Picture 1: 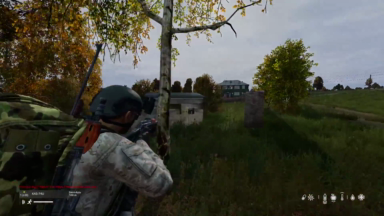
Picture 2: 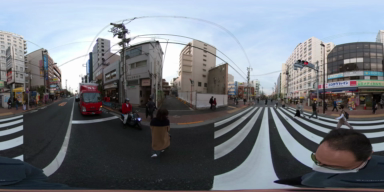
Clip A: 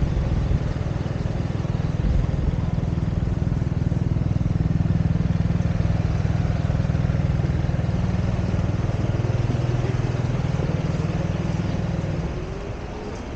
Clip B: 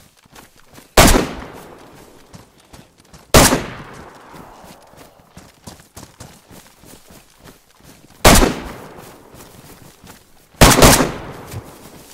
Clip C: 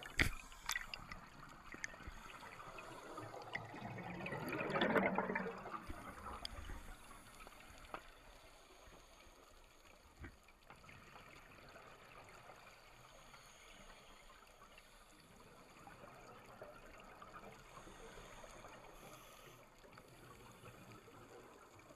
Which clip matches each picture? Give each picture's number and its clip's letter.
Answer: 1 B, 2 A